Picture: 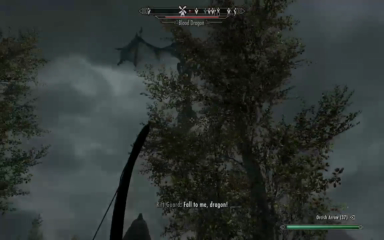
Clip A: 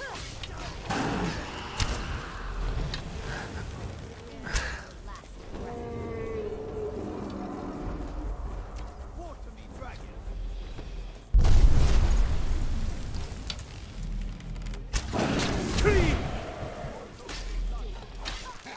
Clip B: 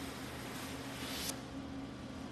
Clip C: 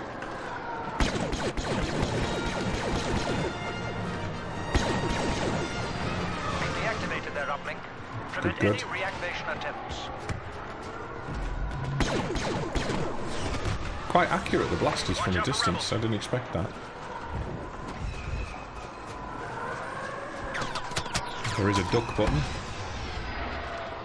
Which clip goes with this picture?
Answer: A